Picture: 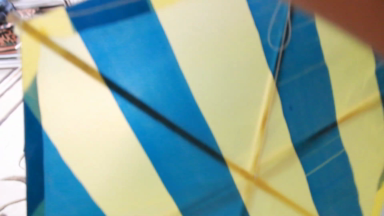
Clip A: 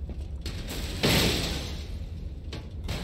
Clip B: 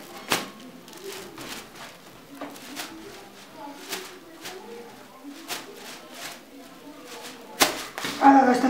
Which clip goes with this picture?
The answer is B